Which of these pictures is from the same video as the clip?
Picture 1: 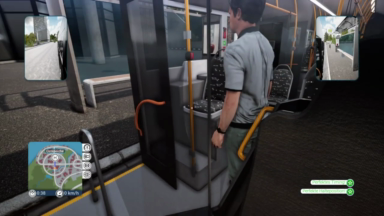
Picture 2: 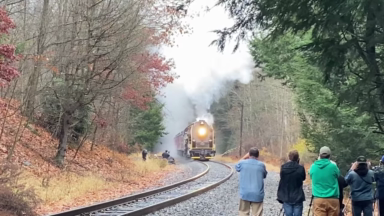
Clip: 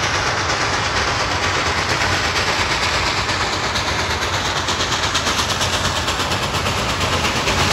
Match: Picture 2